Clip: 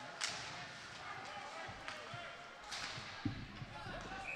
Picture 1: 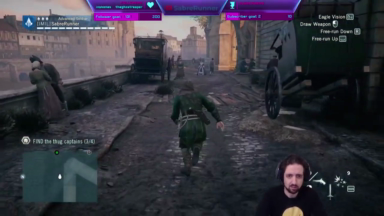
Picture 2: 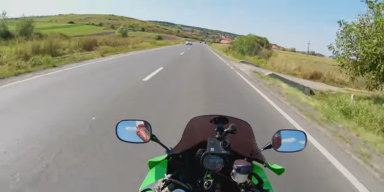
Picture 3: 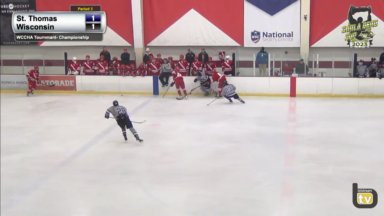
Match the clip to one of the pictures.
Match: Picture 3